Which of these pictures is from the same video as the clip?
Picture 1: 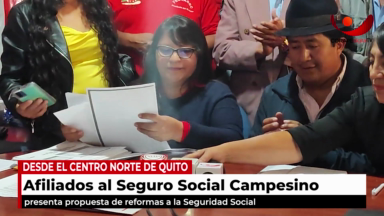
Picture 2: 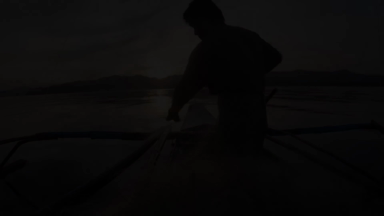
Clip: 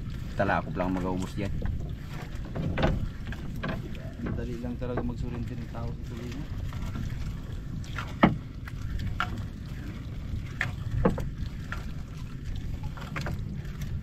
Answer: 2